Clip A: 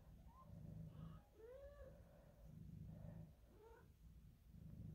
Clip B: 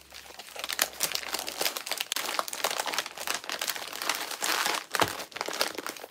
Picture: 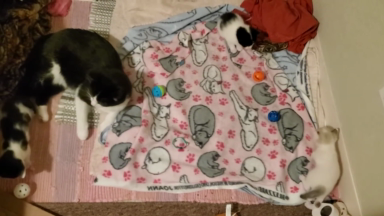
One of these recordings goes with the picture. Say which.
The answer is A